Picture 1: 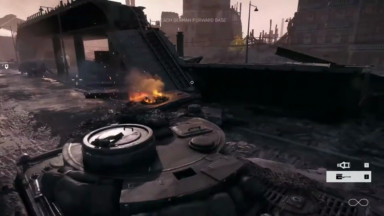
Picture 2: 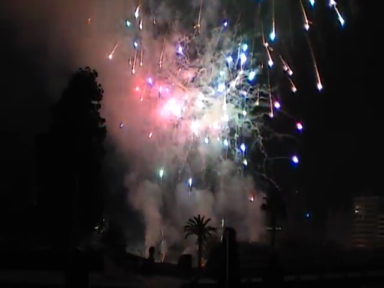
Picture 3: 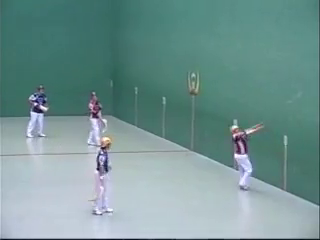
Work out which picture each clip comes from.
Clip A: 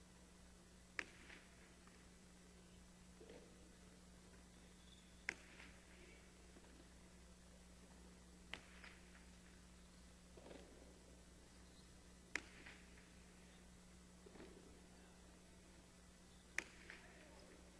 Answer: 3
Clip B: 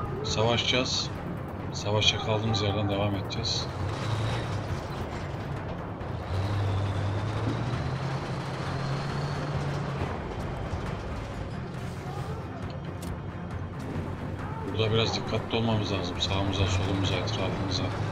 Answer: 1